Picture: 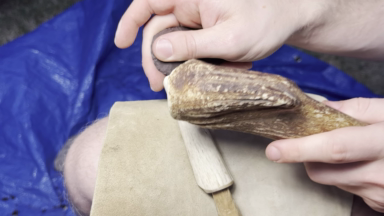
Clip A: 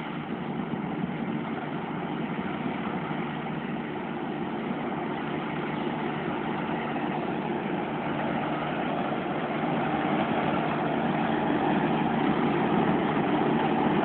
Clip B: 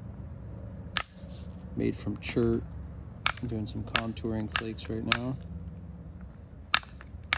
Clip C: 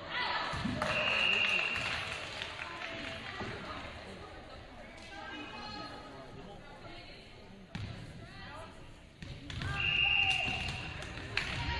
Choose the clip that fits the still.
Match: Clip B